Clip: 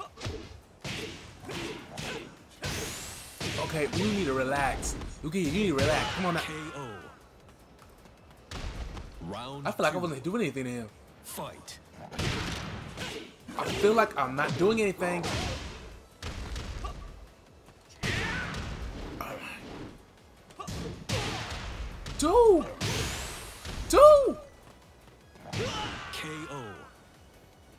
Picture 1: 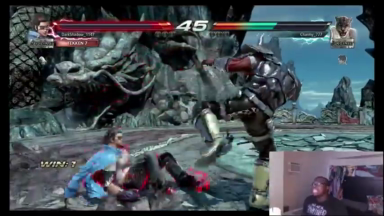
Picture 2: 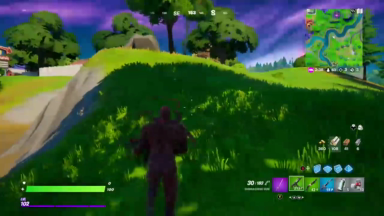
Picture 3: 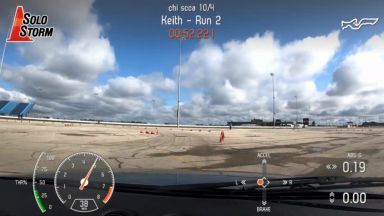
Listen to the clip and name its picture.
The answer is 1